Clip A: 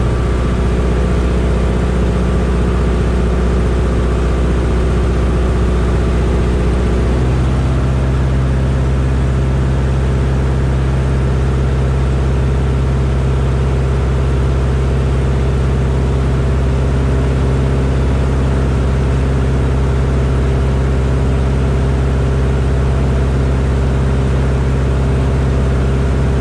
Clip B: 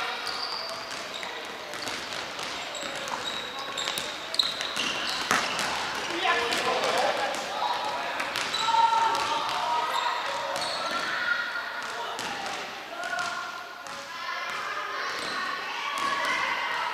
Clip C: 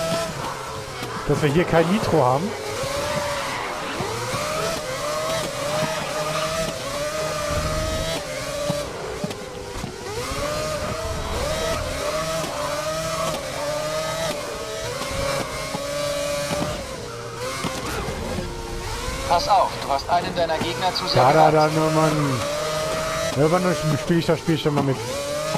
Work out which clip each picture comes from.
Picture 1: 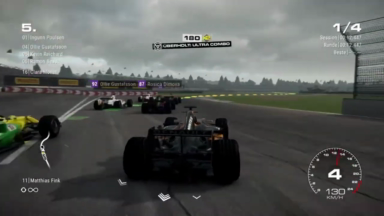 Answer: C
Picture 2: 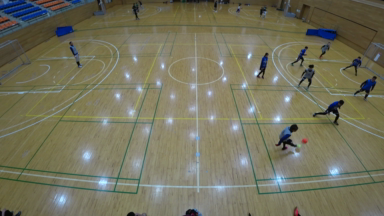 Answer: B